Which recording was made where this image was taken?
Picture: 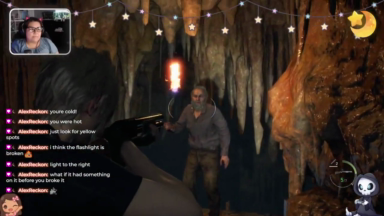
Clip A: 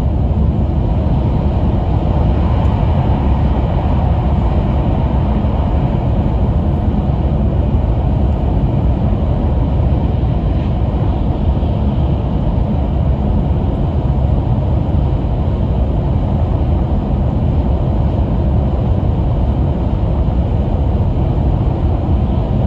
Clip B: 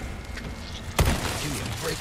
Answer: B